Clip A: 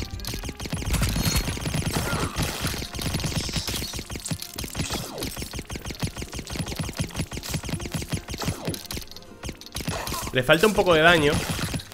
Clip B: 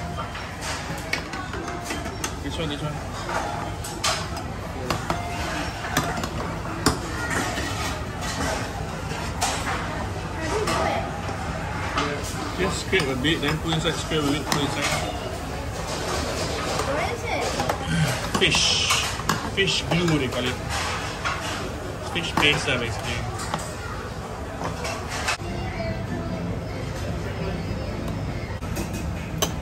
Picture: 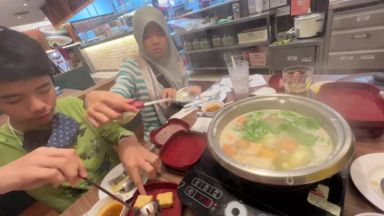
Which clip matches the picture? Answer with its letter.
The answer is B